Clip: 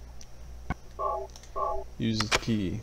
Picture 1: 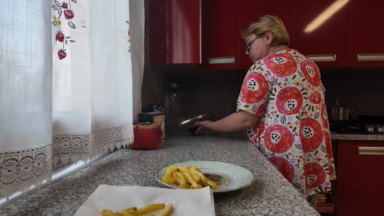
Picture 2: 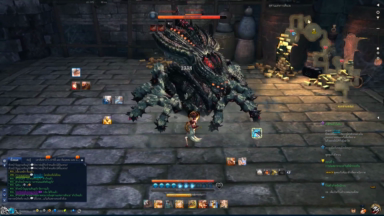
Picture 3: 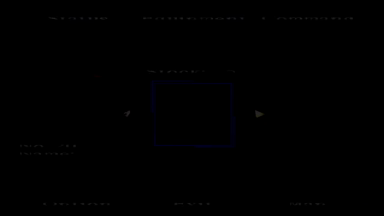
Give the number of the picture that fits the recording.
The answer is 3